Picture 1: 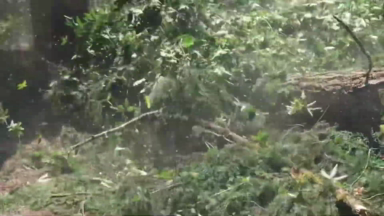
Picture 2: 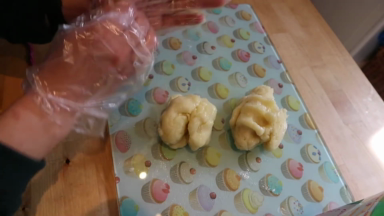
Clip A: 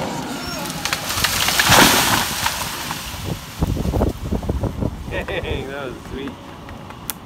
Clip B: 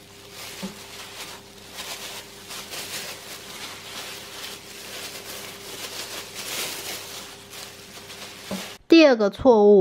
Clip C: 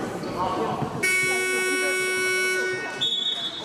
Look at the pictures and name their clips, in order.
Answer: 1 A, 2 B